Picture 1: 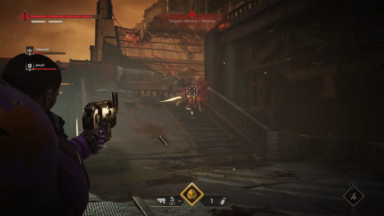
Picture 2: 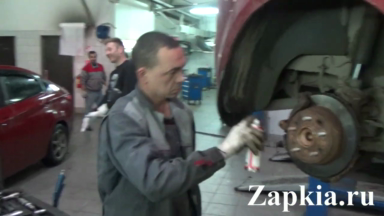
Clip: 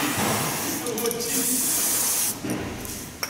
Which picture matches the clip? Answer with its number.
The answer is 2